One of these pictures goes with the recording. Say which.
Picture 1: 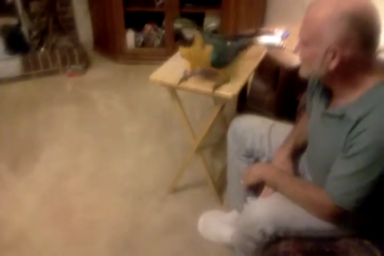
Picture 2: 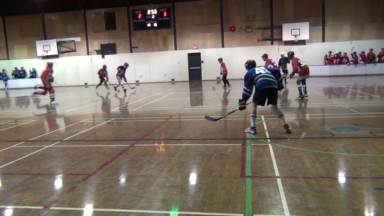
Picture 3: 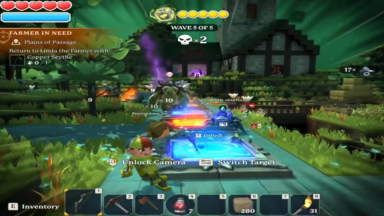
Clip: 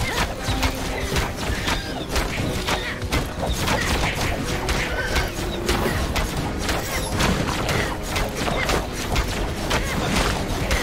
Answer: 3